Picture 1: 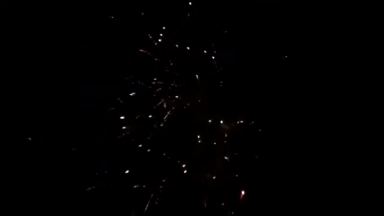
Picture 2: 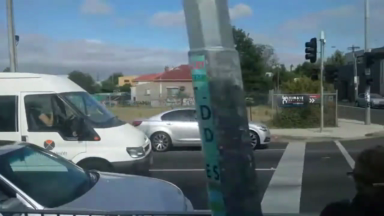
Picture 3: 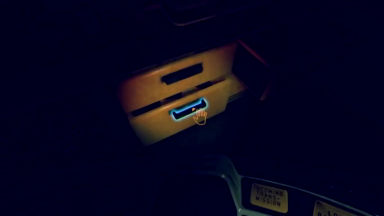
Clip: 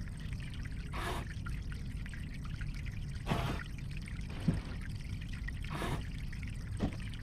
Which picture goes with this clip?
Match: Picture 3